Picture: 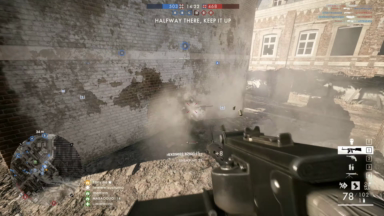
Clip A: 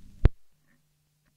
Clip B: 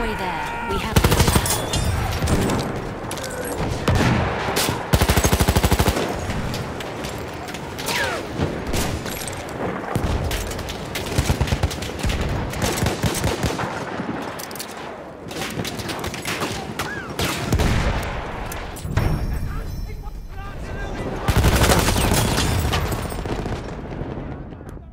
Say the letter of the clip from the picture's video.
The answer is B